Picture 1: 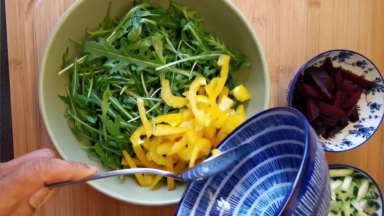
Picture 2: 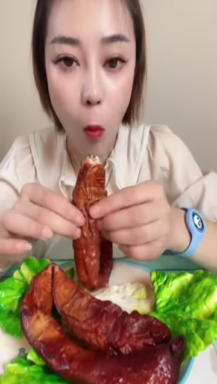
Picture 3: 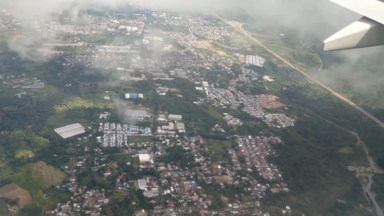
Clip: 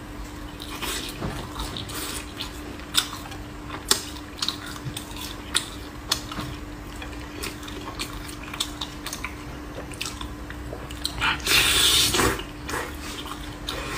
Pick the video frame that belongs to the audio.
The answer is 2